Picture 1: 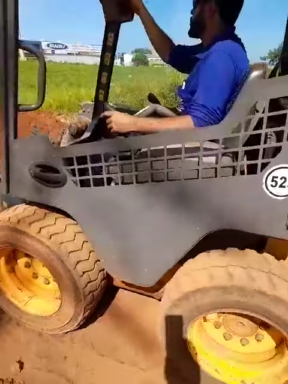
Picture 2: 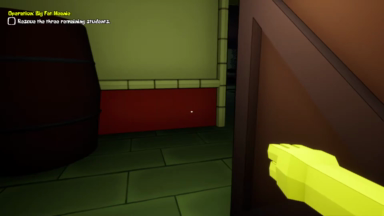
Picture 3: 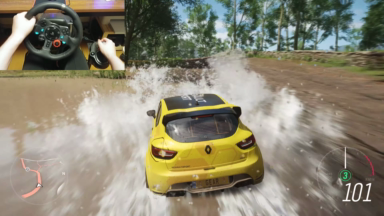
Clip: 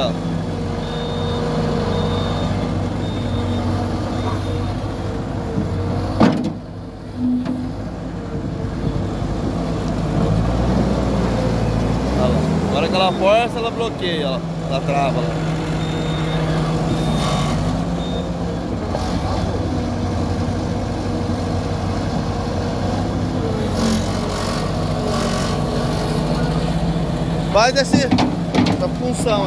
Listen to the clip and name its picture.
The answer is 1